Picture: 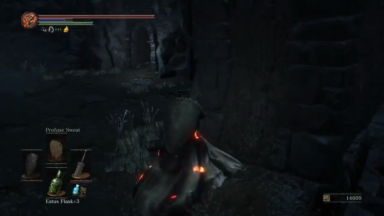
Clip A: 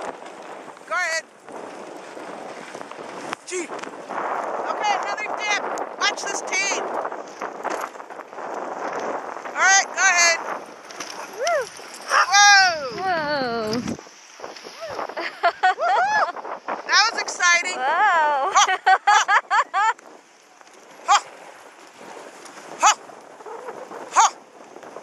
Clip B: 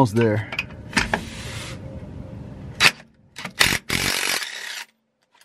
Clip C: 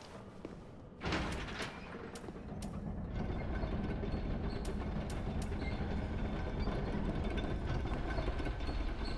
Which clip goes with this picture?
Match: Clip C